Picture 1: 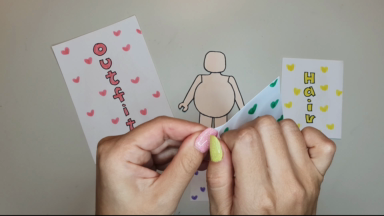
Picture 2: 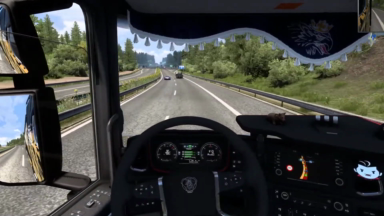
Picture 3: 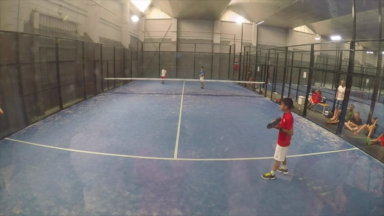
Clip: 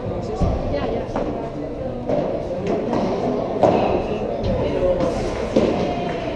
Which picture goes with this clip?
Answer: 3